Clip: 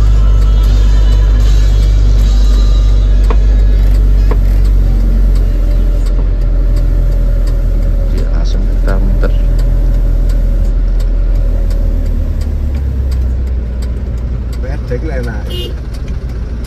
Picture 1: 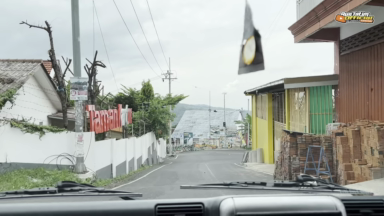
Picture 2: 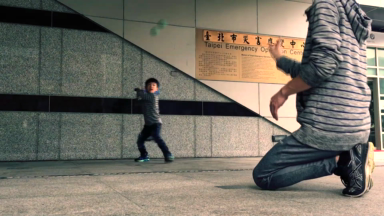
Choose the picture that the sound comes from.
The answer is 1